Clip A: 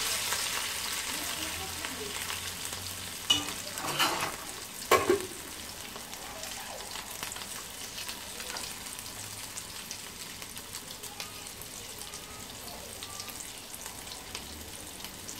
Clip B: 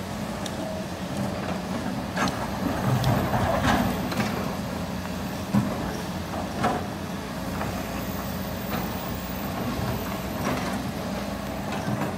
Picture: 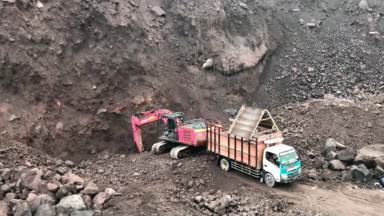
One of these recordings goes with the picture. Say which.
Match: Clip B